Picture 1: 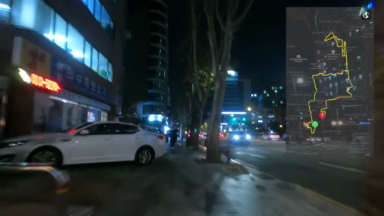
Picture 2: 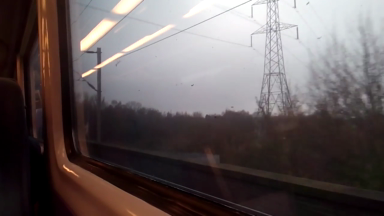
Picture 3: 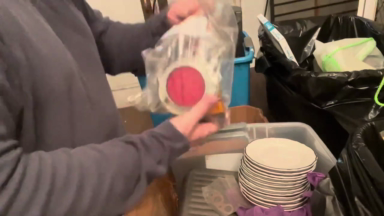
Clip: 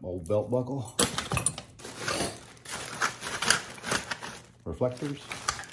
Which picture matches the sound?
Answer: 3